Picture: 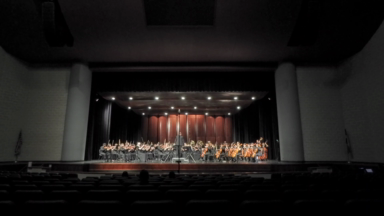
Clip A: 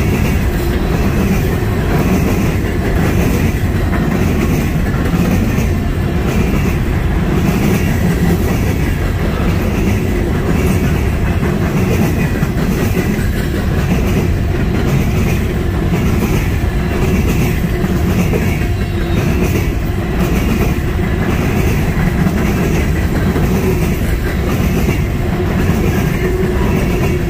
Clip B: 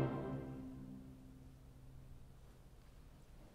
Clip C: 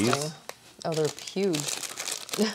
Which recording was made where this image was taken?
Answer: B